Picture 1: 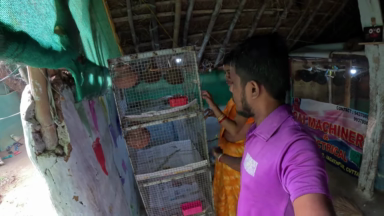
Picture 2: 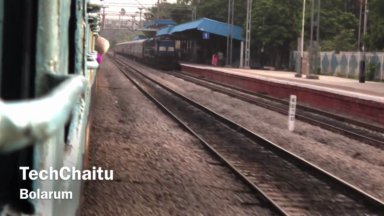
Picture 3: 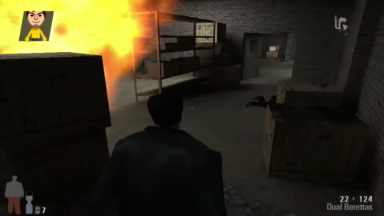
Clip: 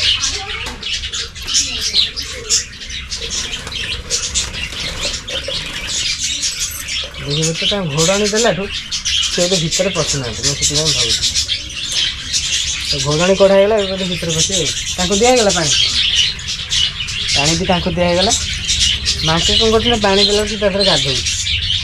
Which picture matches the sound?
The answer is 1